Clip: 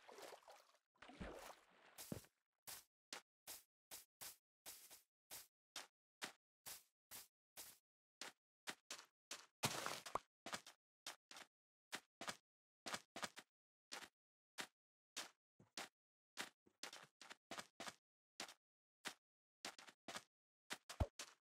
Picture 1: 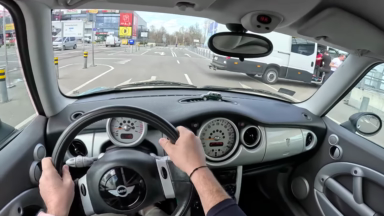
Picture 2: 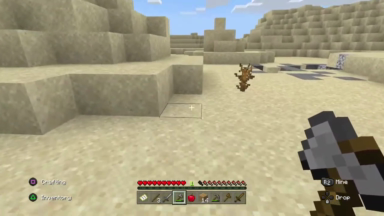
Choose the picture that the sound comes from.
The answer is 2